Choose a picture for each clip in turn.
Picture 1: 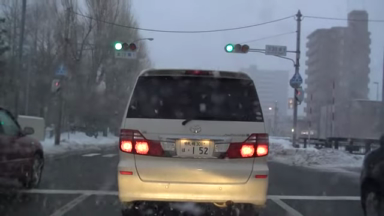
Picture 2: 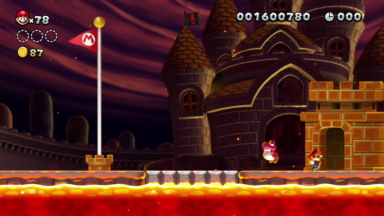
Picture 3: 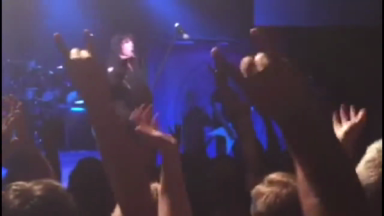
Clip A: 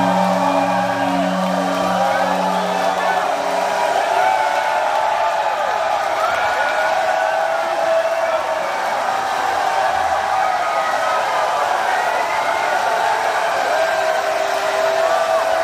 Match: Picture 3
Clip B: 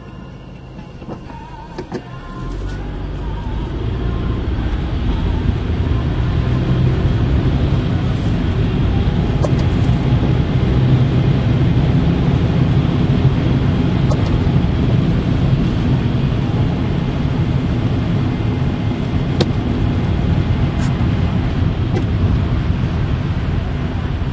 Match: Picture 1